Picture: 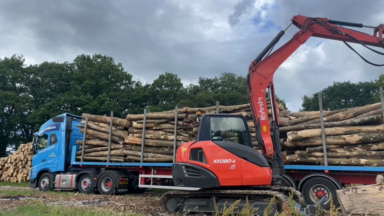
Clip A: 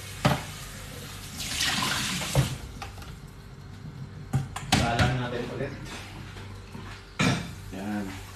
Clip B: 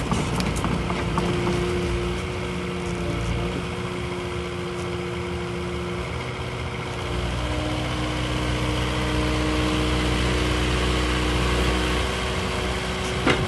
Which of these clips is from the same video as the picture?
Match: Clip B